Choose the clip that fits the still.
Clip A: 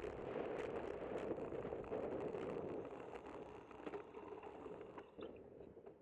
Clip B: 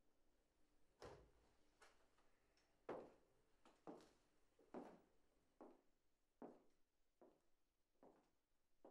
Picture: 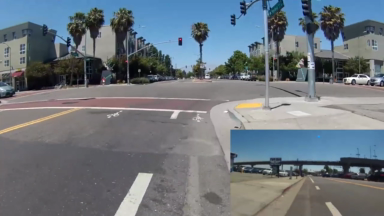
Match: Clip A